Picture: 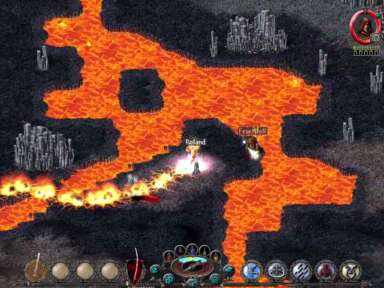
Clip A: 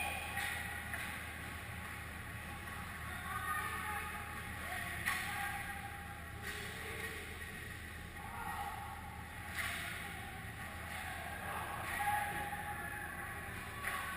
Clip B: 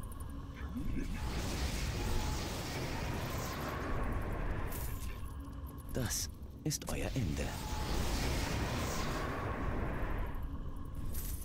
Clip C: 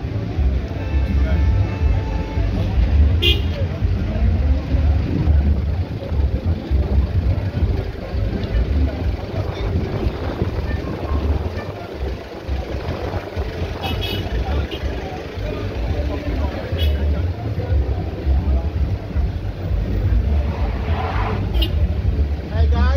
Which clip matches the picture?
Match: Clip B